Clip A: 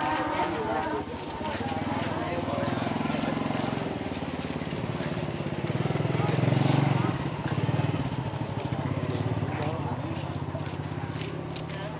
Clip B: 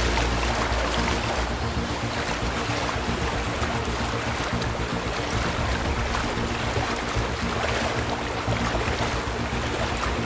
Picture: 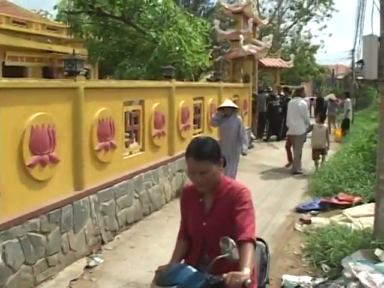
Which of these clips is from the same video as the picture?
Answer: A